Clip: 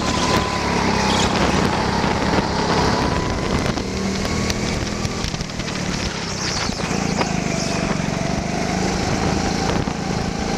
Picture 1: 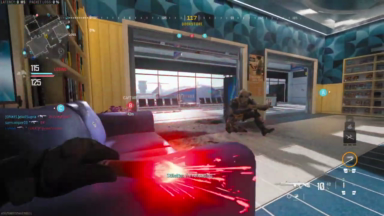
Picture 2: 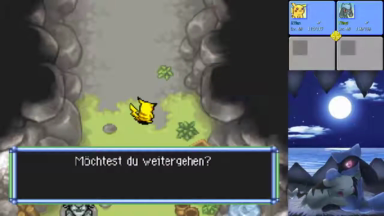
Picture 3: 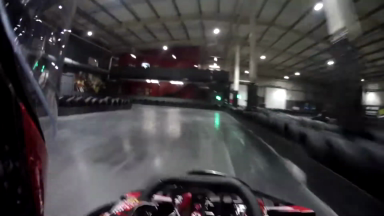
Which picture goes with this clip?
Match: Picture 3